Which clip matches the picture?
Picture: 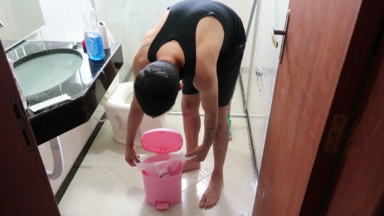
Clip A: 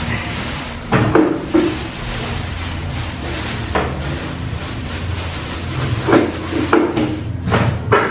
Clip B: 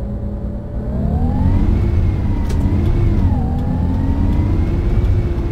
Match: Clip A